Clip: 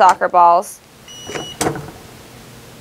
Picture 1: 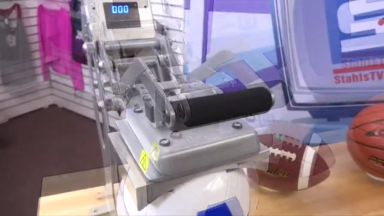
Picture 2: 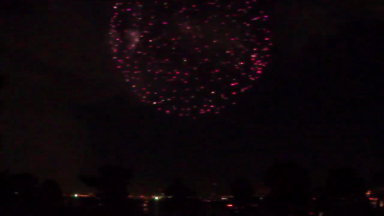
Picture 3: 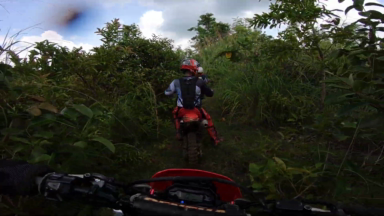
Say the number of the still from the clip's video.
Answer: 1